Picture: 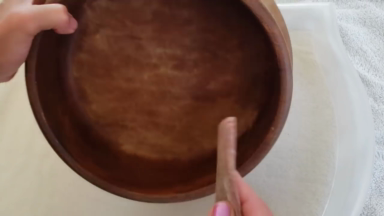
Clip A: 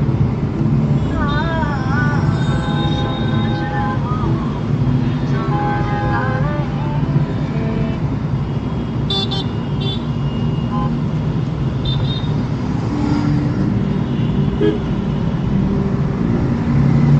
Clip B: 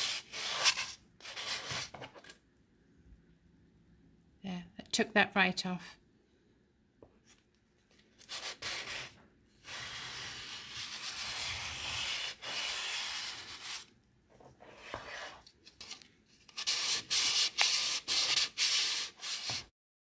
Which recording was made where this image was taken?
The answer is B